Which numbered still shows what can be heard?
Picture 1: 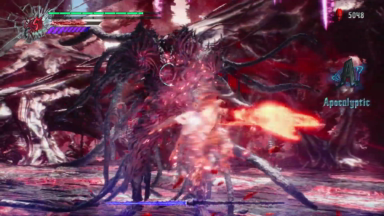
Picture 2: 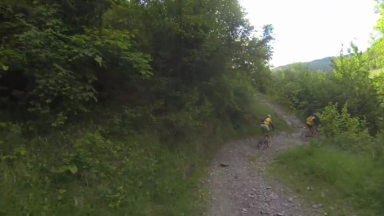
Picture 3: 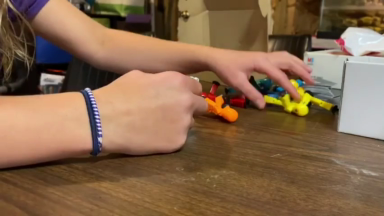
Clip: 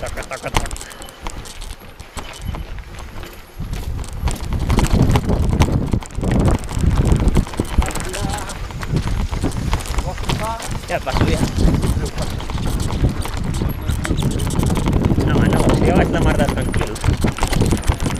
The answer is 2